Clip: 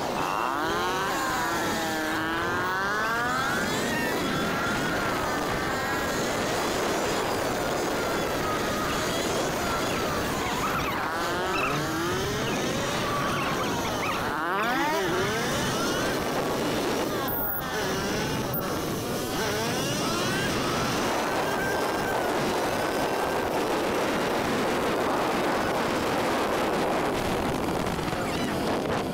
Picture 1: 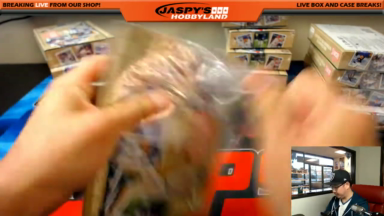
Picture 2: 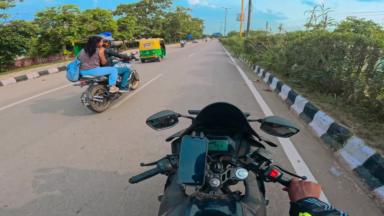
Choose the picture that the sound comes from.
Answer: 2